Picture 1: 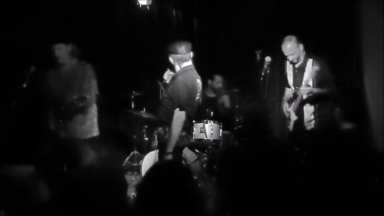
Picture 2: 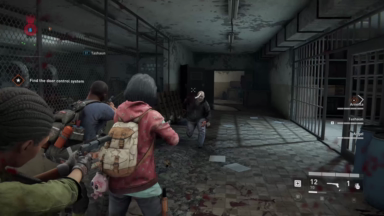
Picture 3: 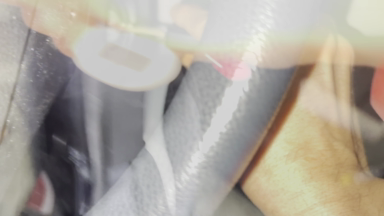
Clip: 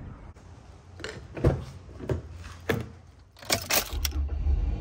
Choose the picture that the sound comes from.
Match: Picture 3